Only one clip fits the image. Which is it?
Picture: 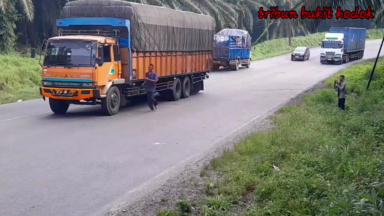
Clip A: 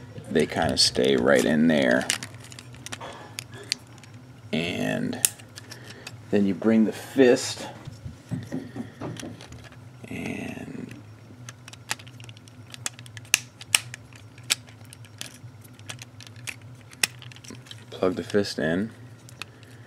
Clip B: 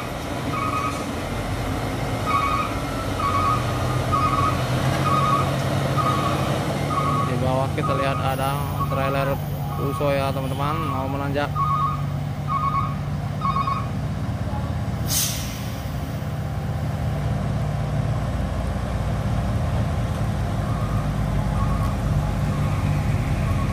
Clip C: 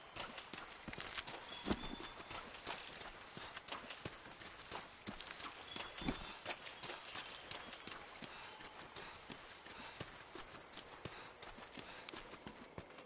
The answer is B